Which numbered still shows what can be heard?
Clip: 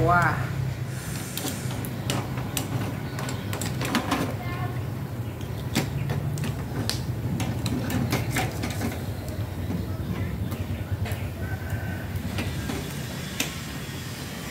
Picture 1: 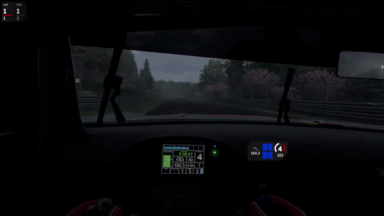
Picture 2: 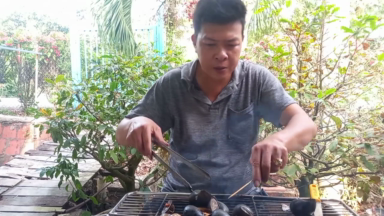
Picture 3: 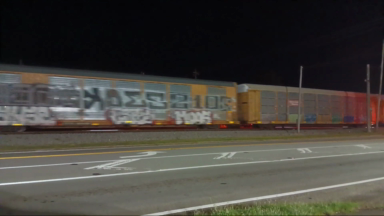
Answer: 2